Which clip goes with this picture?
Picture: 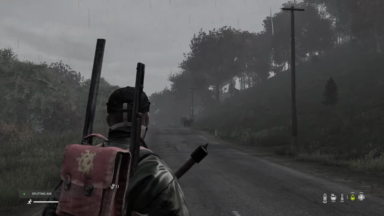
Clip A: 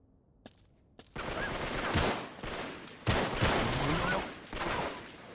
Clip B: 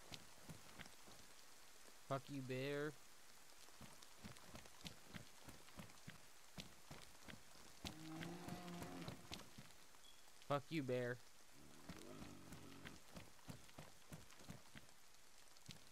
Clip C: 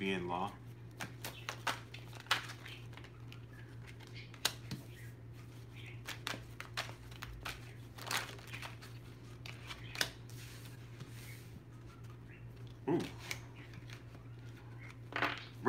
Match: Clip B